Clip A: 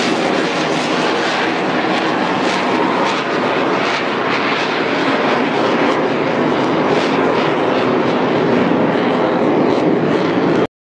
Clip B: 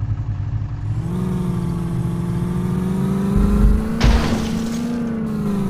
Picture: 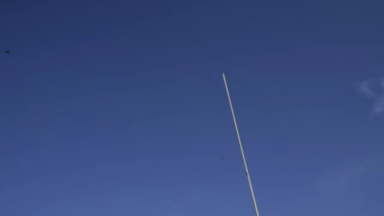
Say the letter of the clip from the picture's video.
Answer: A